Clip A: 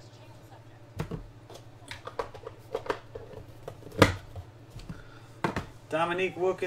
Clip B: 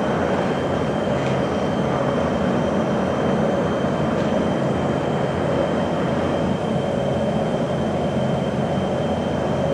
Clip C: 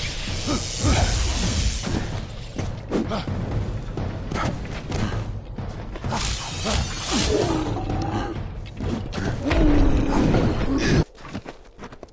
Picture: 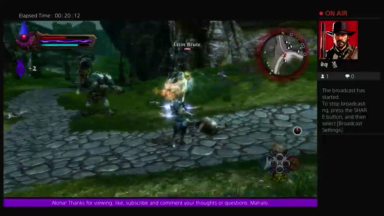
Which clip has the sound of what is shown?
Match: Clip C